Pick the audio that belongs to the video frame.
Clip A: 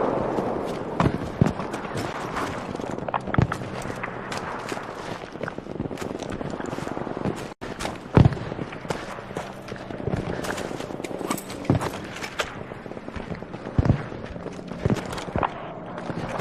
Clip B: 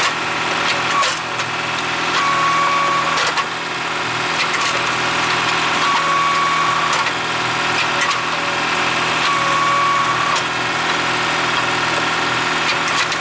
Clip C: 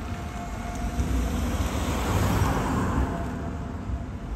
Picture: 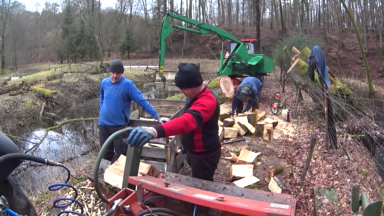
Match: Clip B